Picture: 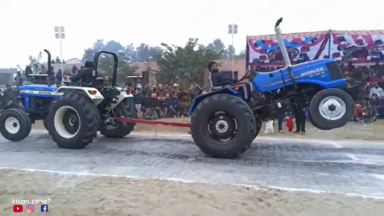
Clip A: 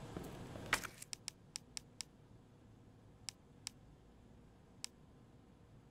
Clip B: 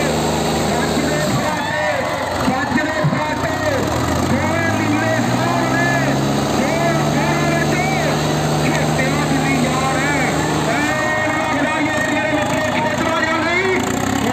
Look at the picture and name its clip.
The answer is B